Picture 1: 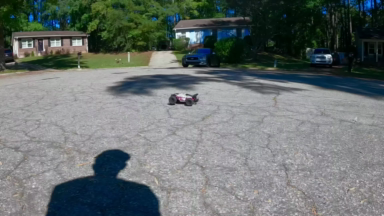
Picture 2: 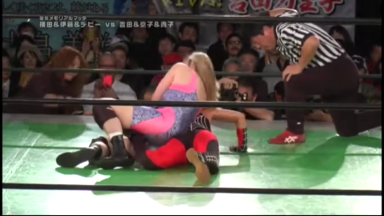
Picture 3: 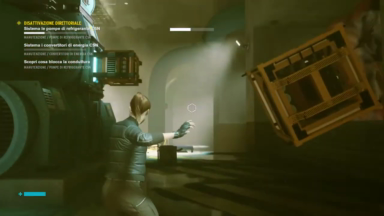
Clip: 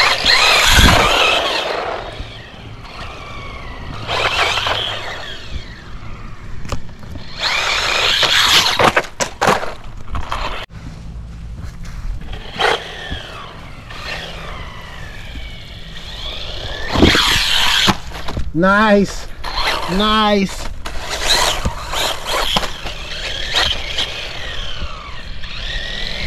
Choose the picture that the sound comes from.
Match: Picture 1